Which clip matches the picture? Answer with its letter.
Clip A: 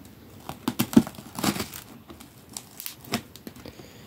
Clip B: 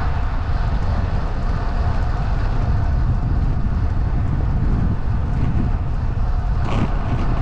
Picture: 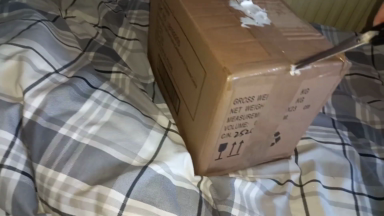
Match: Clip A